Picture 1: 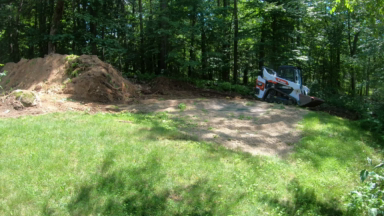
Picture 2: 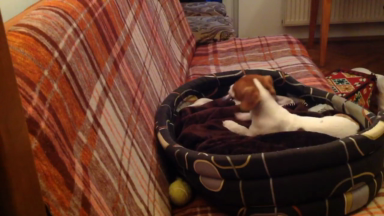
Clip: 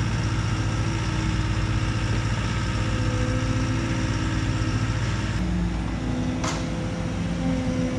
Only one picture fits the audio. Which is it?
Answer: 1